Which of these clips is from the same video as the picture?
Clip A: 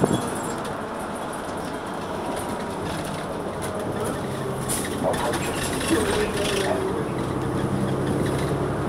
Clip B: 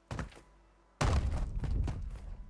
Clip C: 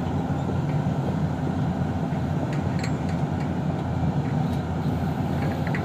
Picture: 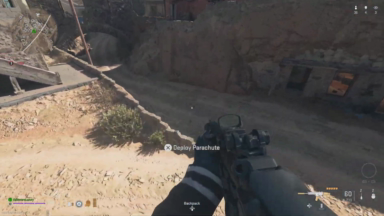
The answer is B